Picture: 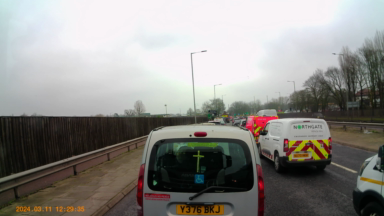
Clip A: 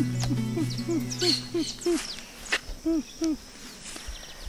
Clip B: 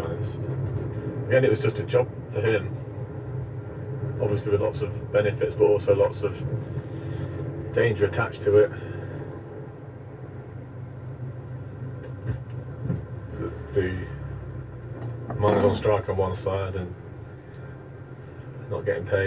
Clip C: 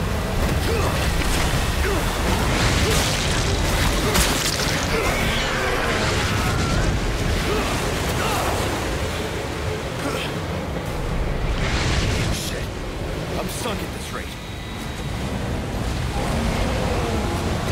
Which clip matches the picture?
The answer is B